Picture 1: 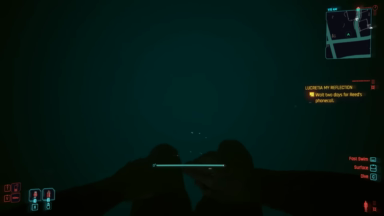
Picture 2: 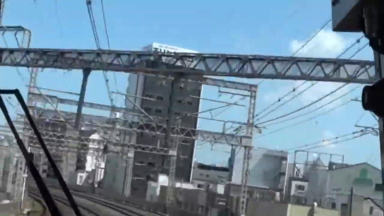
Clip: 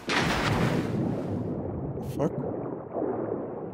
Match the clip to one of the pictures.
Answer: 1